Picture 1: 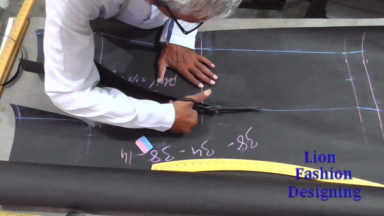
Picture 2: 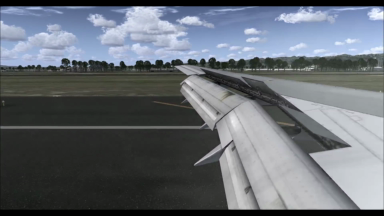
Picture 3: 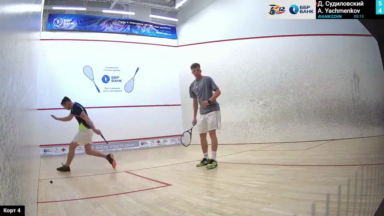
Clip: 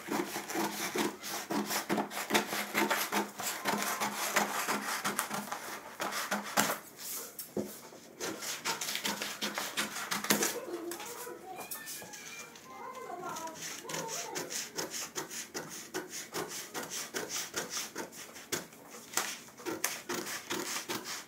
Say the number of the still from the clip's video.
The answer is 1